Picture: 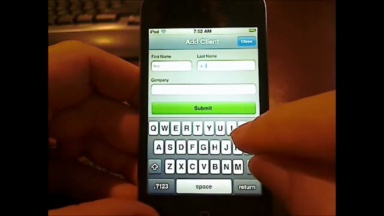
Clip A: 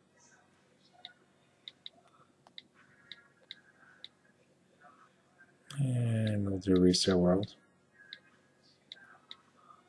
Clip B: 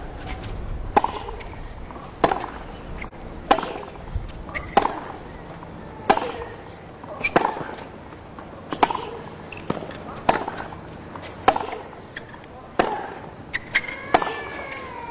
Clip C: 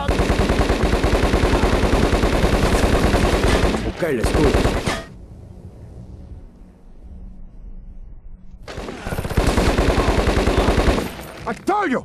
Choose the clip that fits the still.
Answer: A